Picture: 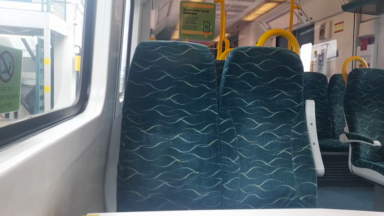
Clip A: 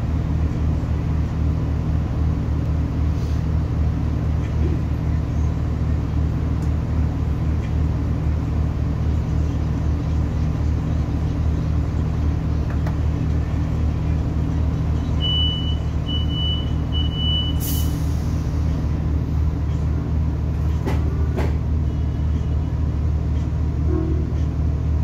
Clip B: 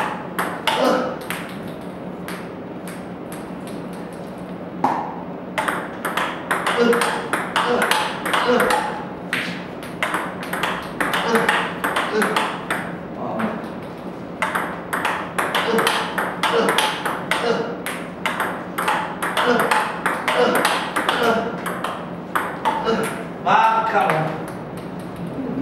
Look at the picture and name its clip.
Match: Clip A